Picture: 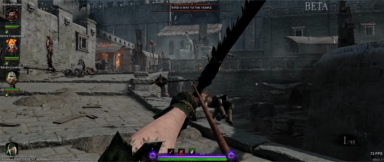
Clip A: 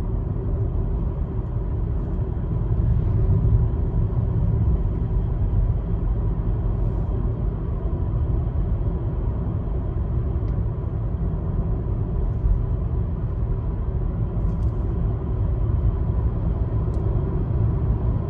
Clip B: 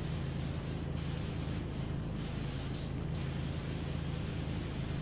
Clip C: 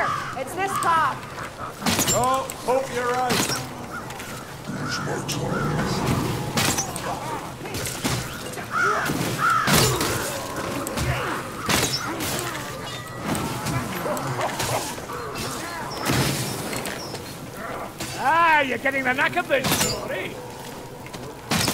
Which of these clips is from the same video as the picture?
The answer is C